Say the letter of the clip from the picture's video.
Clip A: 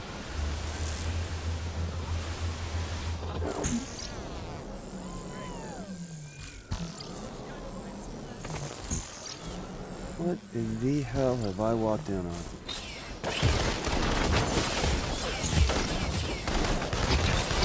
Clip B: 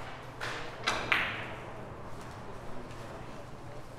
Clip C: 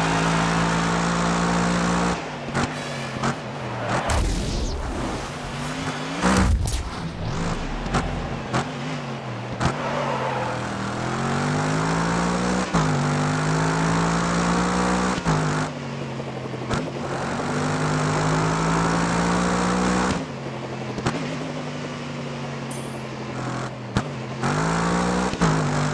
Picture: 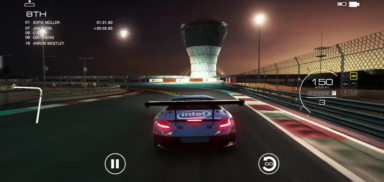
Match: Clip C